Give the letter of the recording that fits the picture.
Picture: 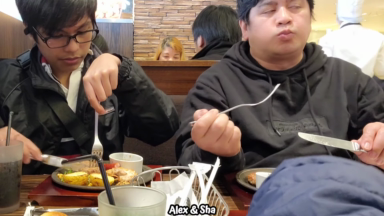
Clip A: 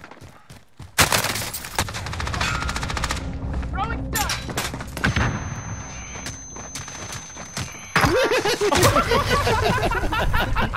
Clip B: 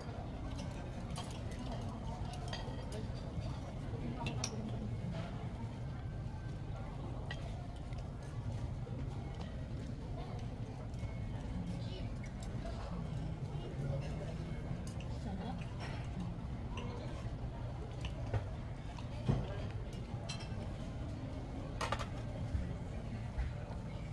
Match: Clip B